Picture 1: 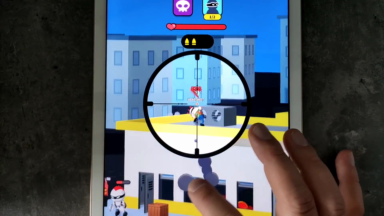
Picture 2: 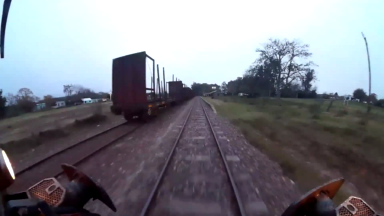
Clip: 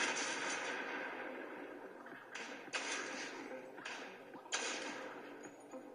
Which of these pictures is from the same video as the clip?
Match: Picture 1